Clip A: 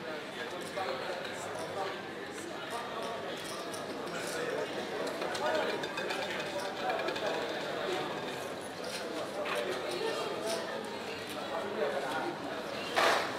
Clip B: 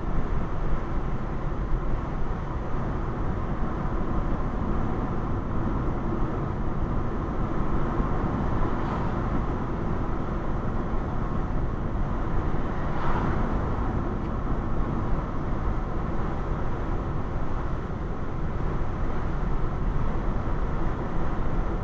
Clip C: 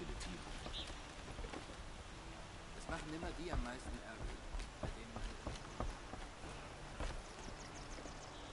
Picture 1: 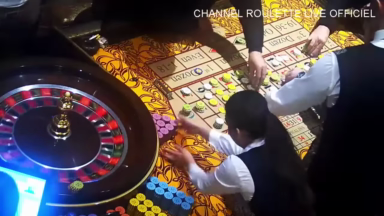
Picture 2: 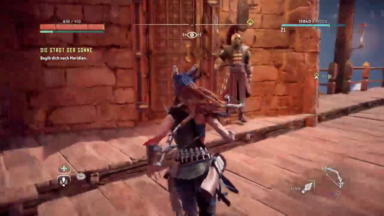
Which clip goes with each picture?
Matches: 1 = A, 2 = C